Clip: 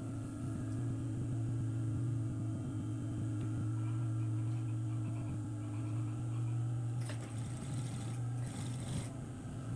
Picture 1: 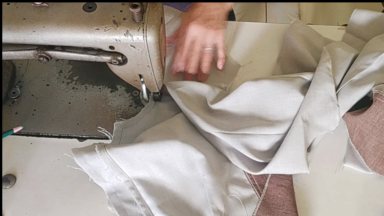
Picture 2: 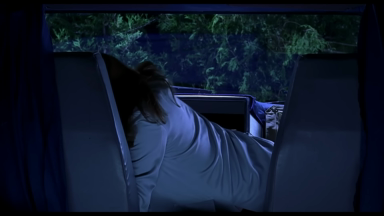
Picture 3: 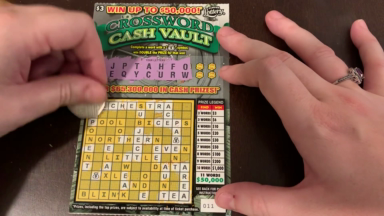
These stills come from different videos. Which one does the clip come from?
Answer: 1